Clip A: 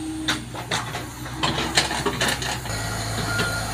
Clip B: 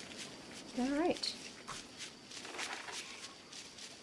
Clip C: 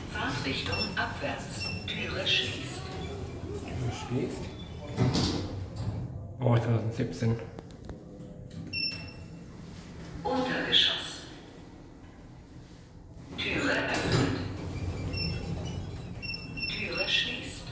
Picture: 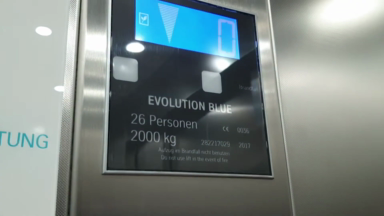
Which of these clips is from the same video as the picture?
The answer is C